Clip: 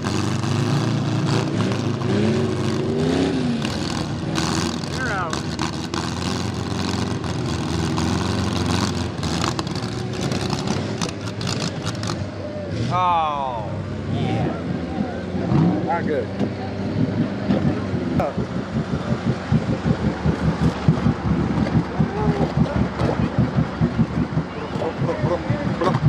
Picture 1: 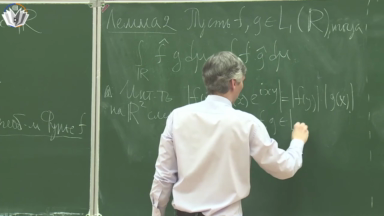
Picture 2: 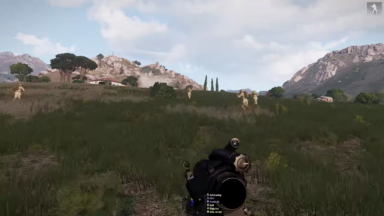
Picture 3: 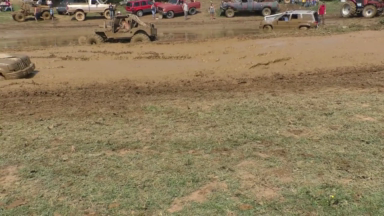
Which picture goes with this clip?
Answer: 3